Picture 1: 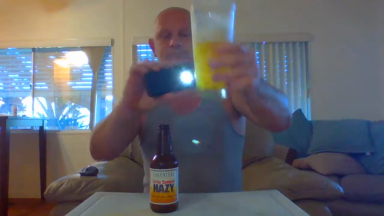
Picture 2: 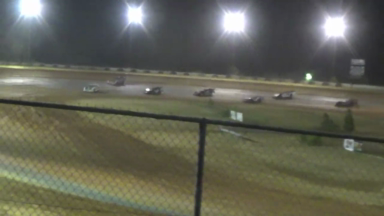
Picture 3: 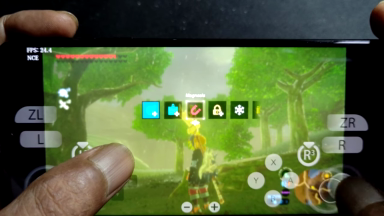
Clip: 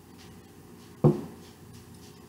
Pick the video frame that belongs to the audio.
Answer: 1